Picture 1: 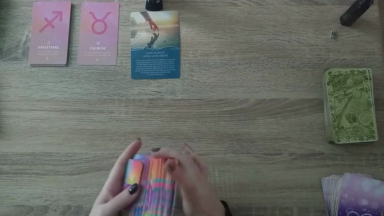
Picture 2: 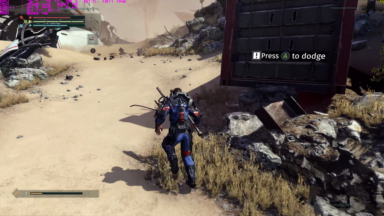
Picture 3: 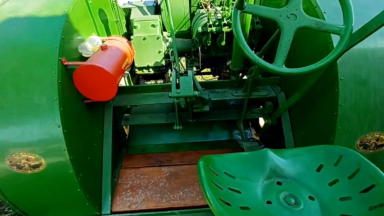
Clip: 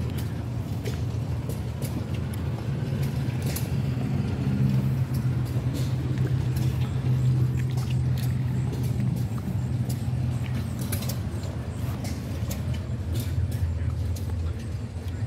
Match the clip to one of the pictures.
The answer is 3